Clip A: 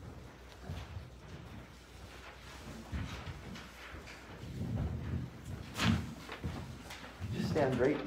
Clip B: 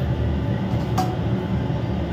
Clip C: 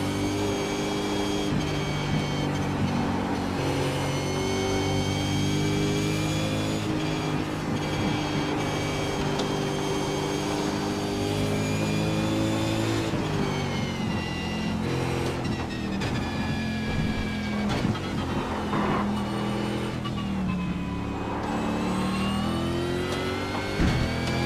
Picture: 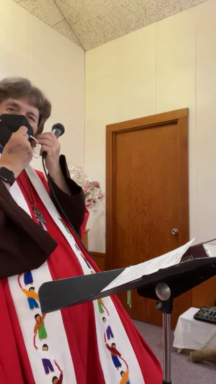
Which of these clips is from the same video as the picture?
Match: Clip A